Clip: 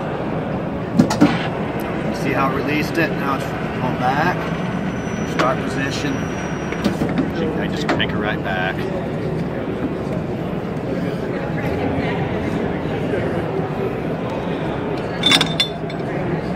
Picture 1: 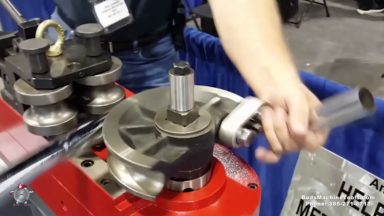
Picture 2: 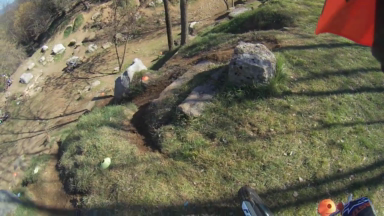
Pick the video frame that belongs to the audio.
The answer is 1